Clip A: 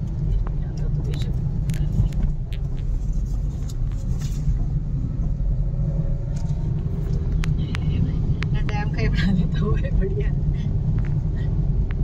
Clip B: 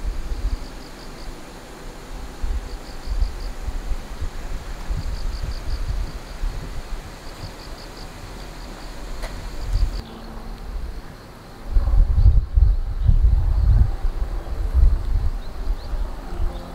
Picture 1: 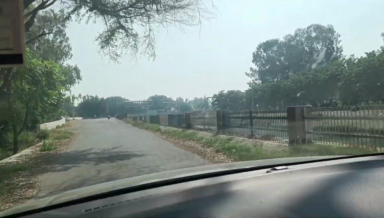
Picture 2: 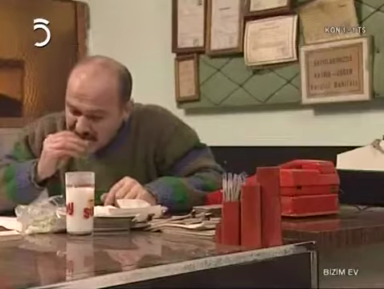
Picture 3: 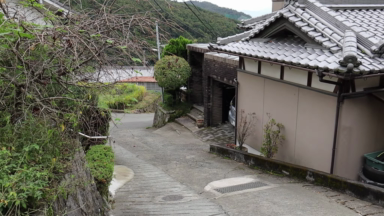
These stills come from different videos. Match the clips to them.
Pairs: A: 1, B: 3